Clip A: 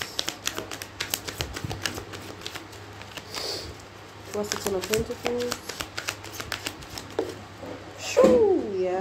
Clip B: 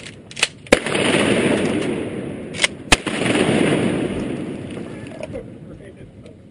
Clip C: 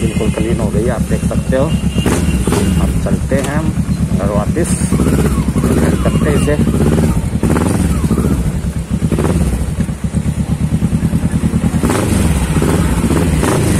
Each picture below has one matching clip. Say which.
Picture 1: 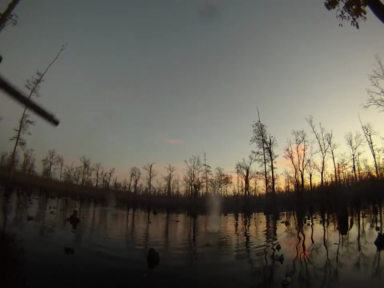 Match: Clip B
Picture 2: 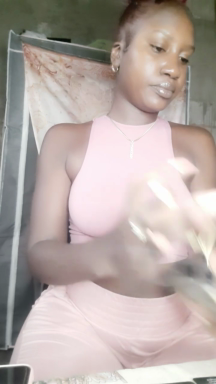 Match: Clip A